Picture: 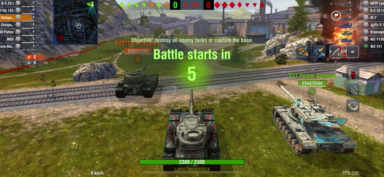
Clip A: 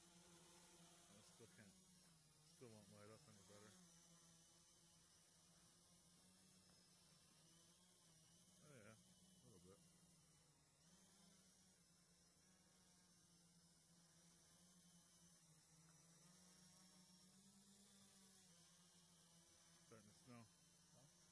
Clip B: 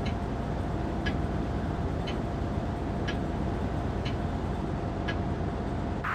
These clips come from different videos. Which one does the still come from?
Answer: B